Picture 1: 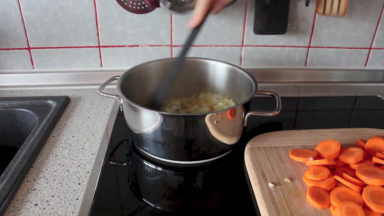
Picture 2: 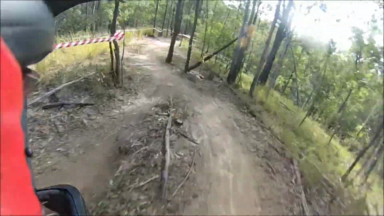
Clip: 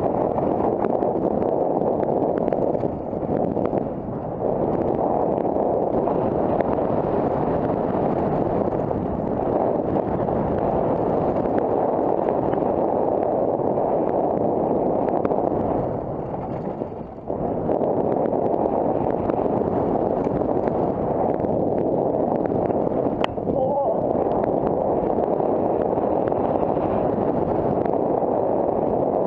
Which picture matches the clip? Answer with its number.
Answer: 2